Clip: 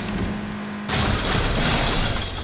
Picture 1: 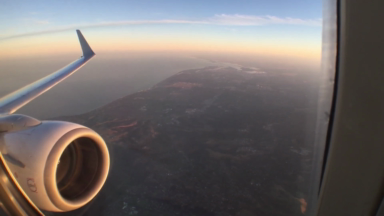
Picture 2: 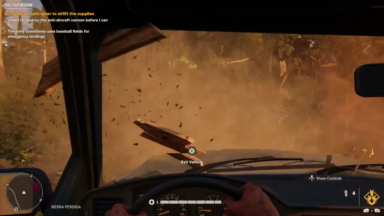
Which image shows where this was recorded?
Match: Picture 2